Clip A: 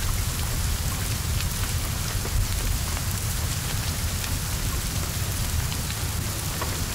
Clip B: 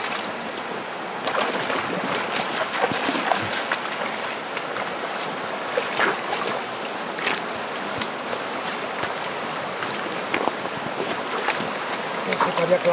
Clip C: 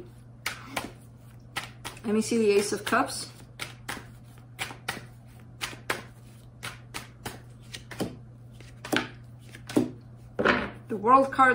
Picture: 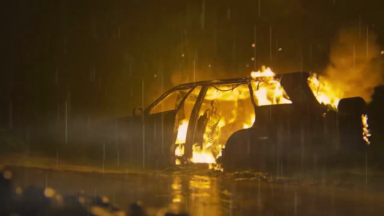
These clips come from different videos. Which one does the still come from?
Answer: A